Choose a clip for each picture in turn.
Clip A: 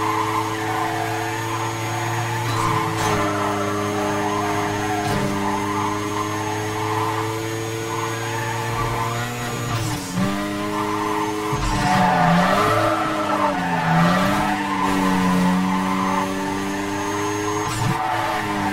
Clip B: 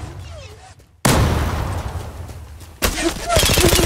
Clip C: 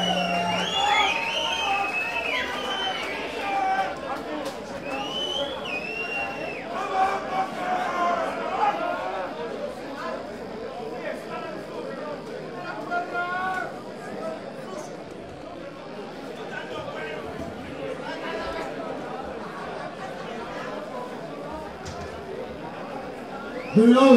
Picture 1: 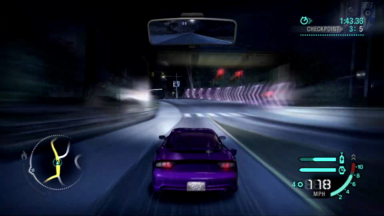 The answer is A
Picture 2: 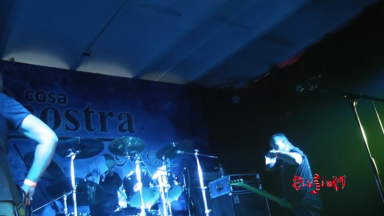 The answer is C